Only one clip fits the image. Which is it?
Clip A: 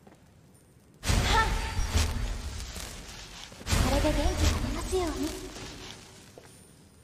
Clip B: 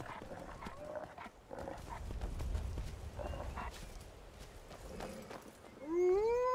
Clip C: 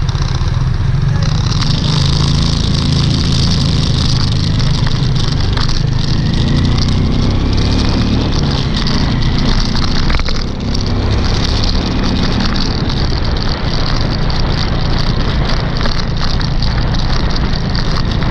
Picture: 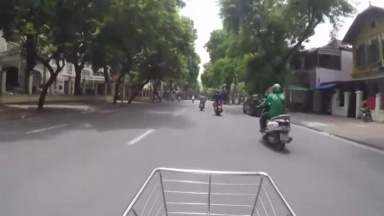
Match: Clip C